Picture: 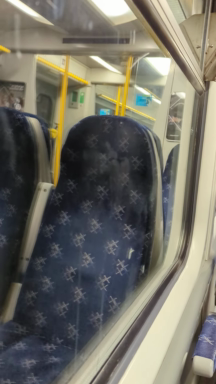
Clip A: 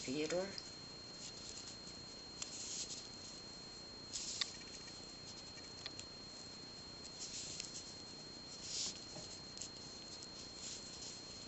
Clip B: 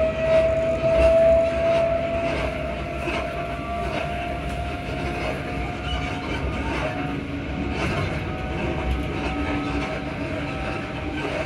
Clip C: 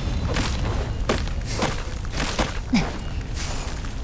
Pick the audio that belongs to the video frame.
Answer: B